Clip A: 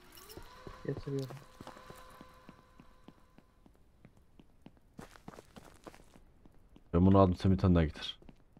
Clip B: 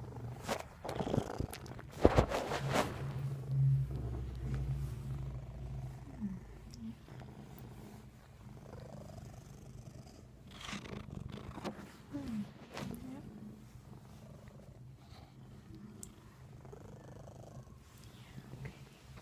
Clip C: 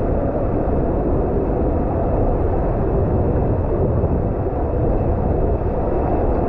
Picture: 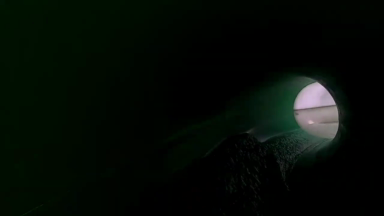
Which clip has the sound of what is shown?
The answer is C